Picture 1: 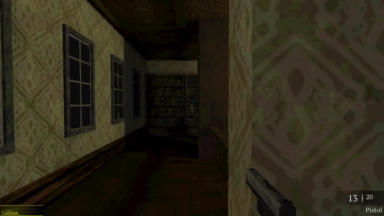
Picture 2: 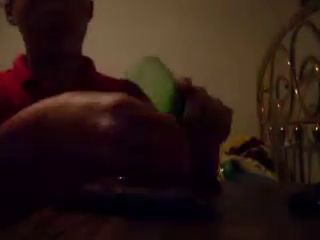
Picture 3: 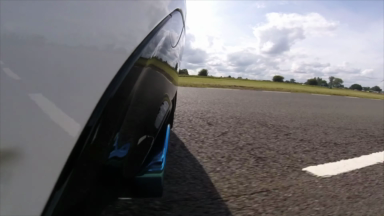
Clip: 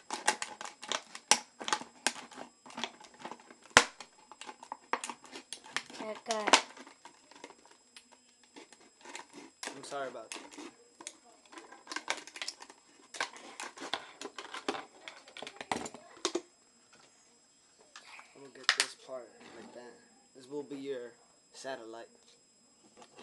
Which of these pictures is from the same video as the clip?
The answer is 2